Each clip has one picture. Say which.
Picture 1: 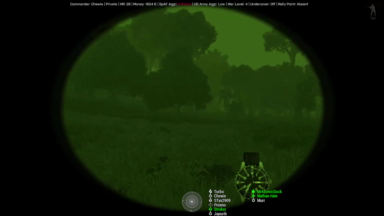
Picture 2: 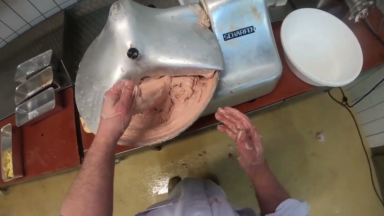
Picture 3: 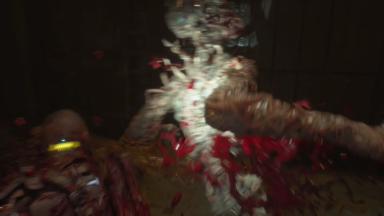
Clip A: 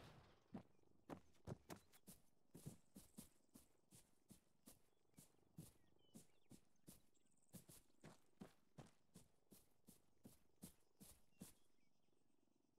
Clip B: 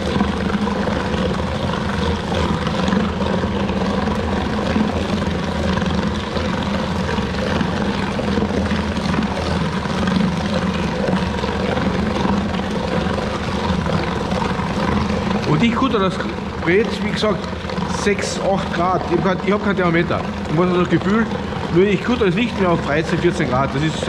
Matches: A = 1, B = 2